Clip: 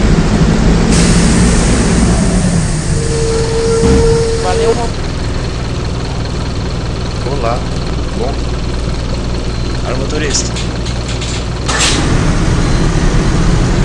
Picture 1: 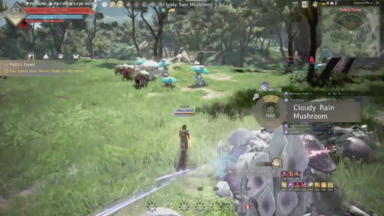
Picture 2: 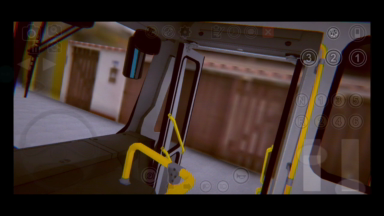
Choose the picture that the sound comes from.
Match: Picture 2